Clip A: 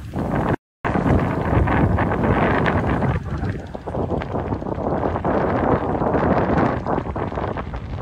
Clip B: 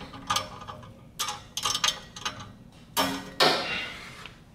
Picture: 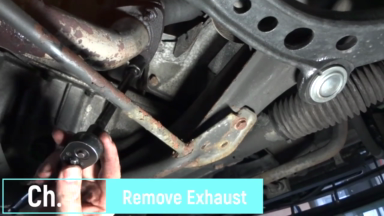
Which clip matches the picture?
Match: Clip B